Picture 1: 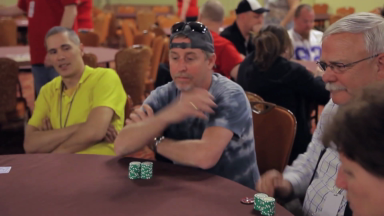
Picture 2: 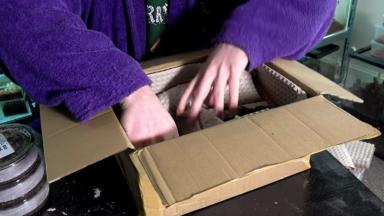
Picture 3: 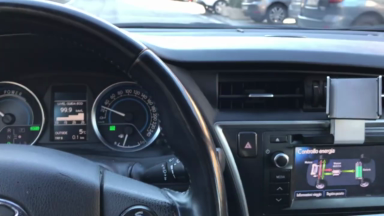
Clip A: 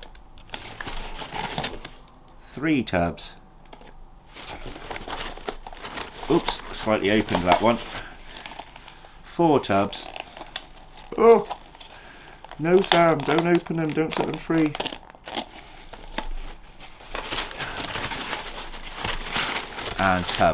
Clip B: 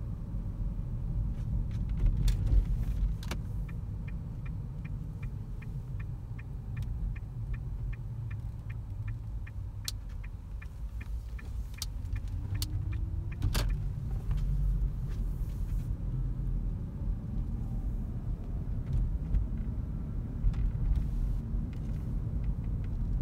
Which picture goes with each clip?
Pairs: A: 2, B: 3